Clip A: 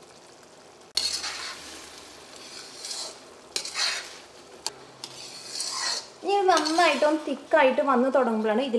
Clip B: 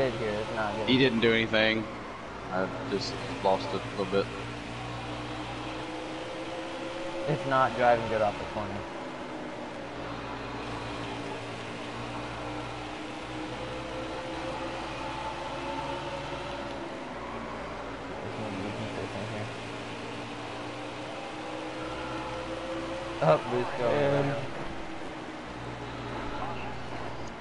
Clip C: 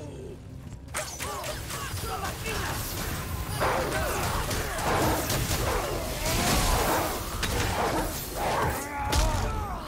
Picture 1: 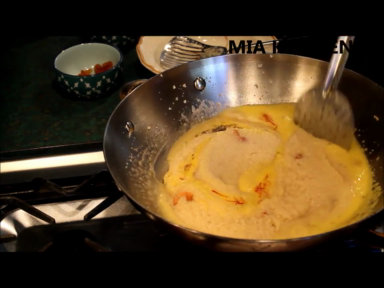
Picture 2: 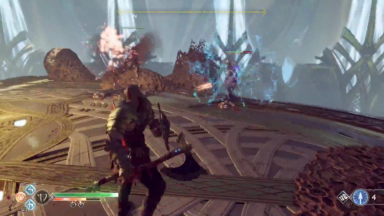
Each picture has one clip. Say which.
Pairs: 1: A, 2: C